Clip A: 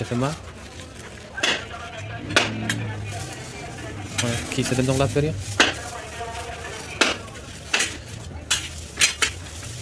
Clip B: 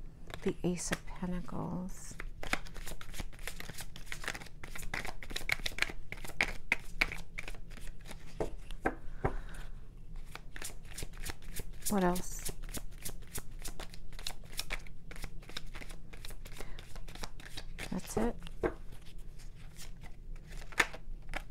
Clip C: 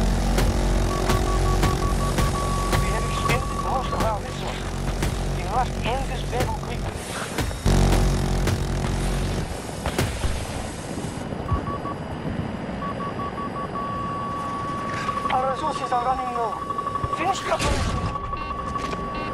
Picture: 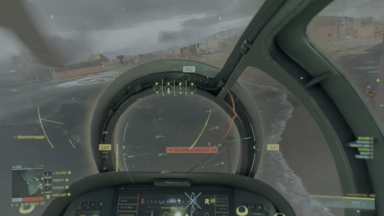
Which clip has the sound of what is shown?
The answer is C